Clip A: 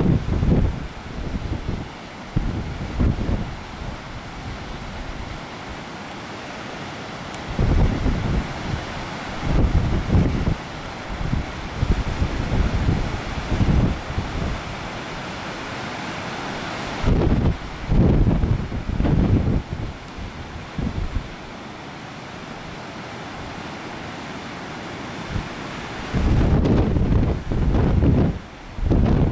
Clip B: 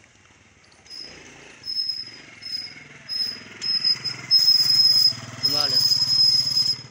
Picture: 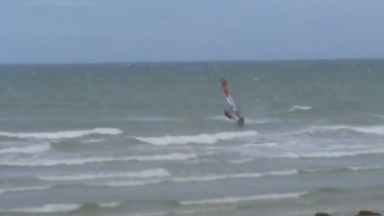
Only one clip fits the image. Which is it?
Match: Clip A